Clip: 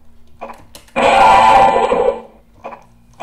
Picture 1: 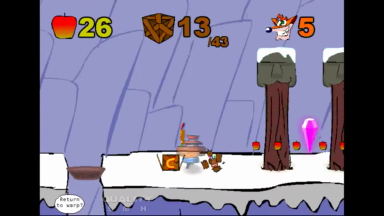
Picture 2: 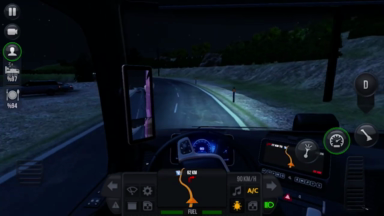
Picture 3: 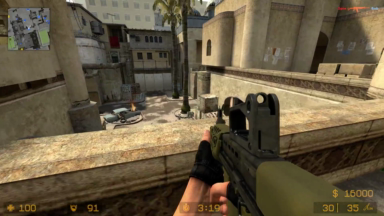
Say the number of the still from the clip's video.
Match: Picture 1